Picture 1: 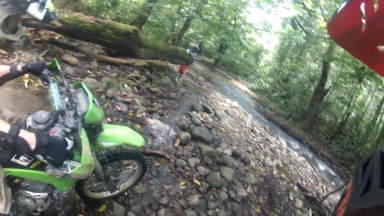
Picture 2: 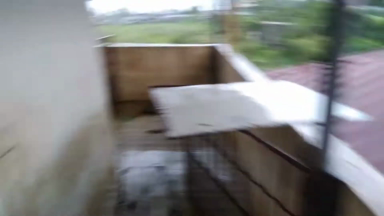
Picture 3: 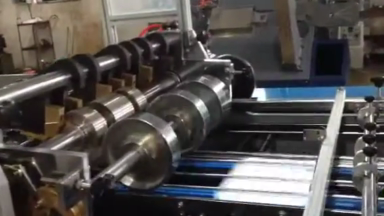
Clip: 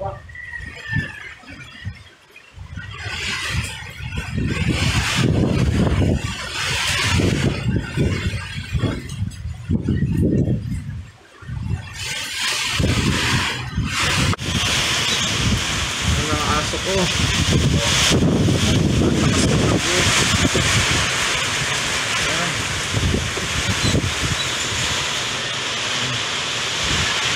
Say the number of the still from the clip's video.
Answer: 2